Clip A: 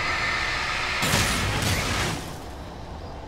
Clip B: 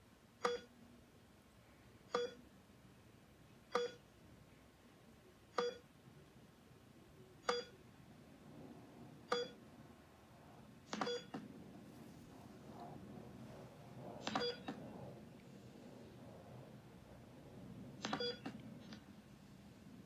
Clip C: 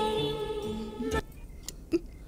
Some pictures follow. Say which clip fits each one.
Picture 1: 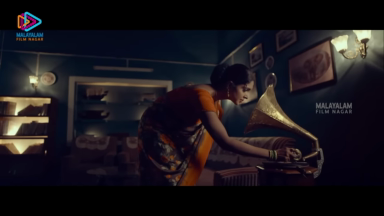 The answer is C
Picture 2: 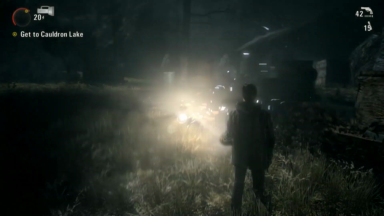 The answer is A